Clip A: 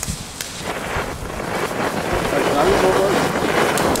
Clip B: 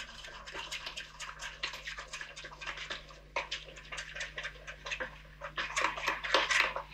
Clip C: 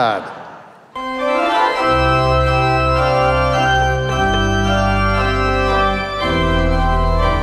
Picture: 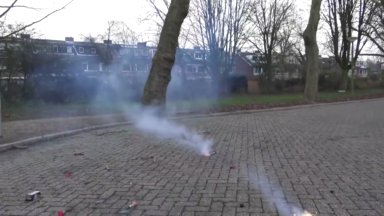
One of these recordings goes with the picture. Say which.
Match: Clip A